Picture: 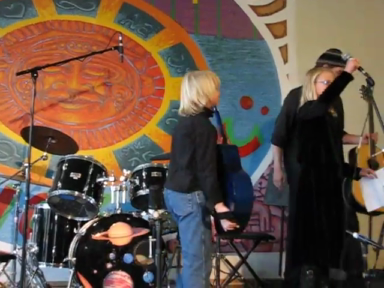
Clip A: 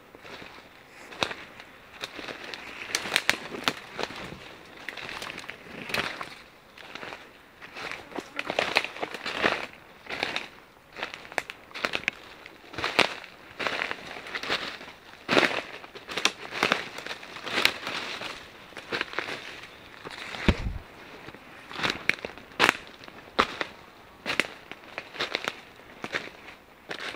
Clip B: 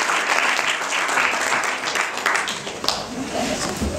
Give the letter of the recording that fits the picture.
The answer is B